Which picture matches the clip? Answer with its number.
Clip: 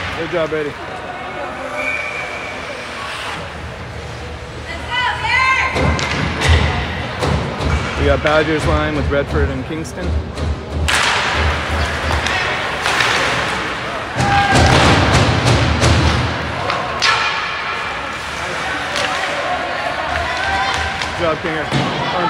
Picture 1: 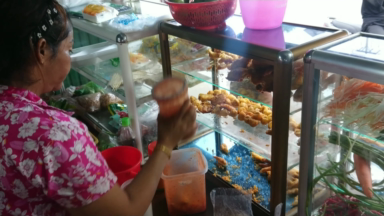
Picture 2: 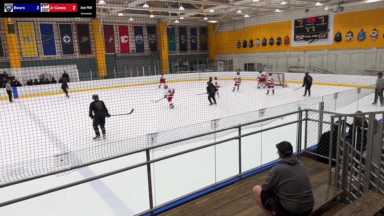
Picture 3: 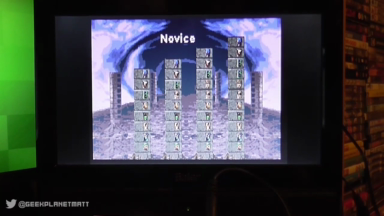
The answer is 2